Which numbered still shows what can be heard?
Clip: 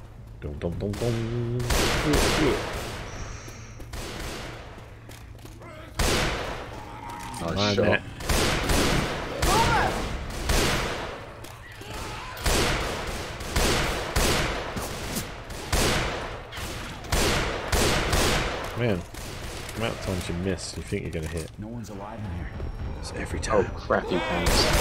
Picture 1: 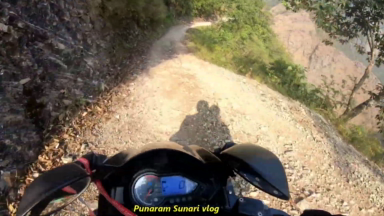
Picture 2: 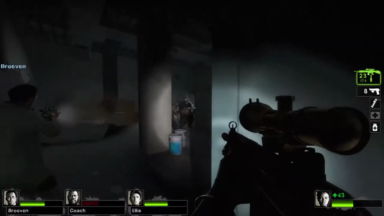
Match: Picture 2